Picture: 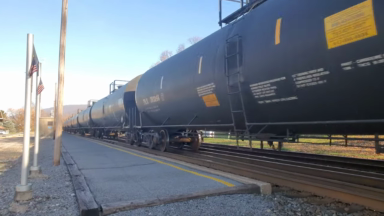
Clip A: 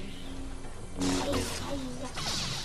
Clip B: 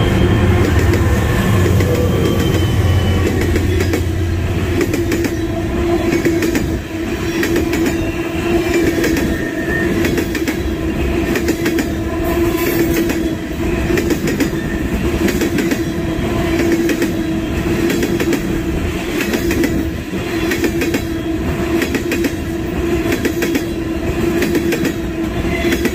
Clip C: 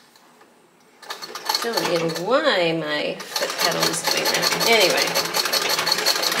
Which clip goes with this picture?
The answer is B